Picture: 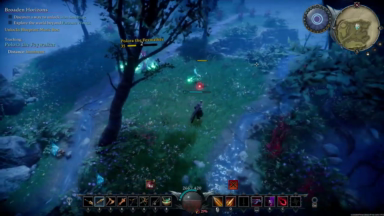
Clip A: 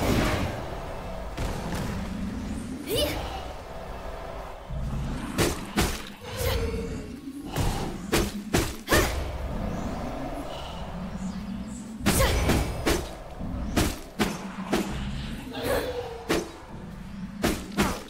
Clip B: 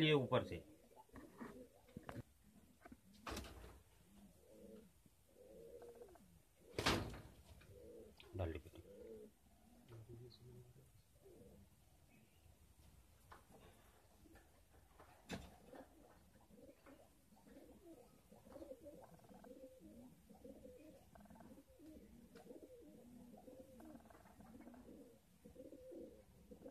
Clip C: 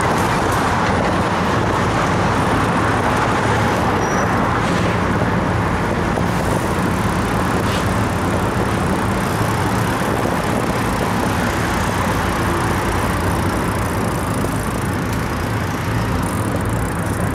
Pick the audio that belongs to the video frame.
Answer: A